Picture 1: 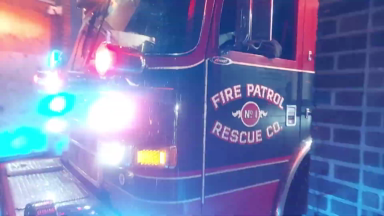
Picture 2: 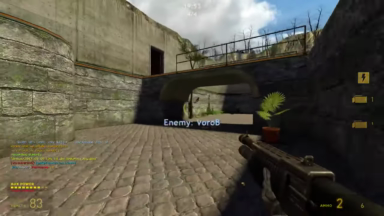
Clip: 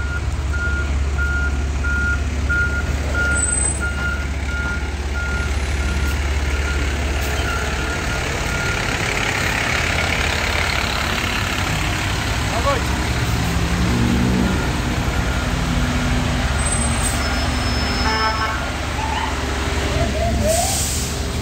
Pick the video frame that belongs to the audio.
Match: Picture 1